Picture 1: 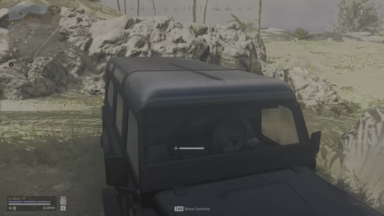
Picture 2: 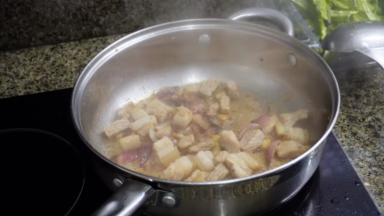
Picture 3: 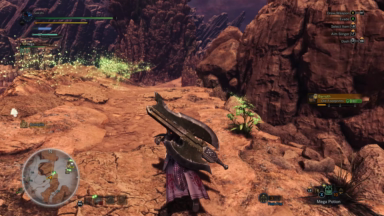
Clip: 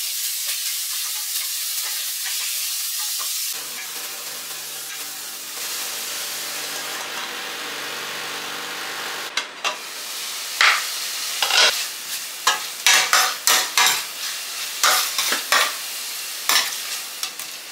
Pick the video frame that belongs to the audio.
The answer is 2